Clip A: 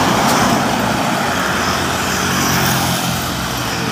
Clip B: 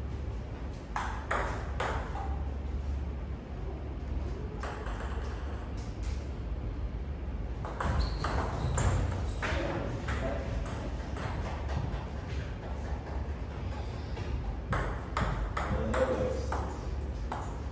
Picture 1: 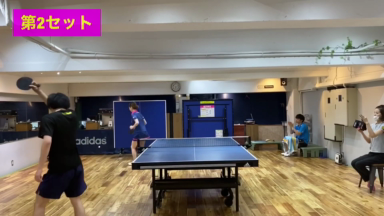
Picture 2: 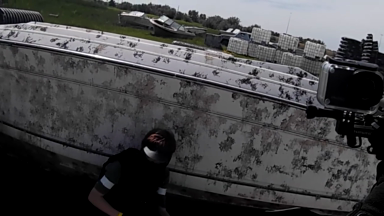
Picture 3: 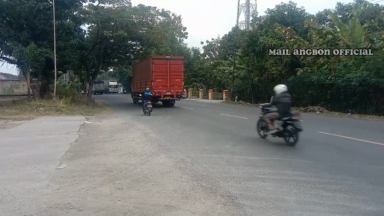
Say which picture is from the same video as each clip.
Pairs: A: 3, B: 1